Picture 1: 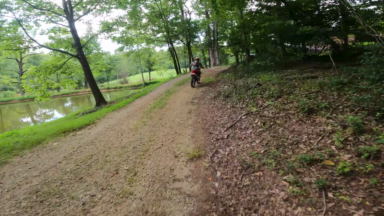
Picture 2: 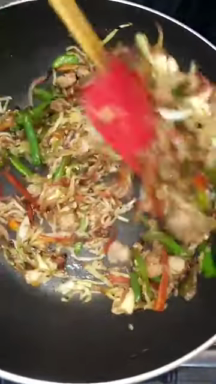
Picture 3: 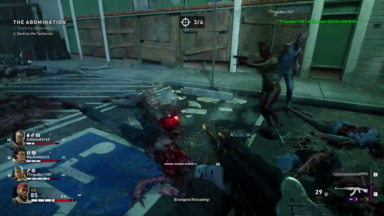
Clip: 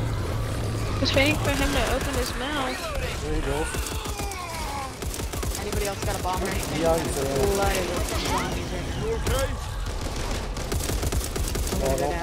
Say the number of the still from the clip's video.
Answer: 3